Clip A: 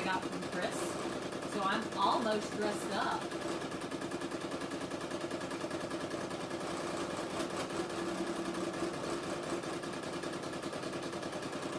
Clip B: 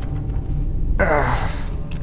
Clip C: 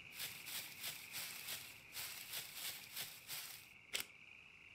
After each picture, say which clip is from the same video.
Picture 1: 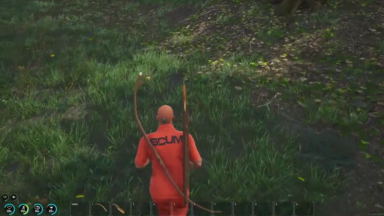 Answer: C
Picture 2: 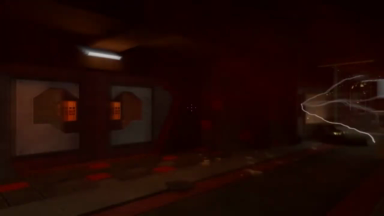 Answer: B